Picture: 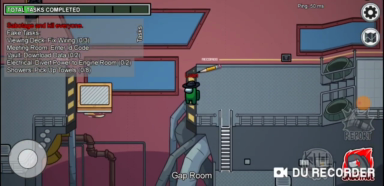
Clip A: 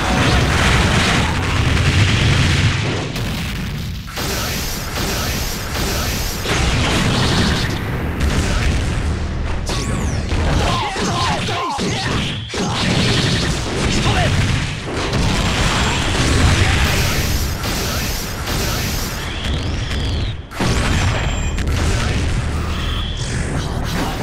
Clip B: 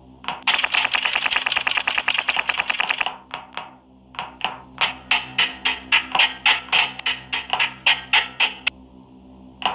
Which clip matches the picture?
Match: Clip B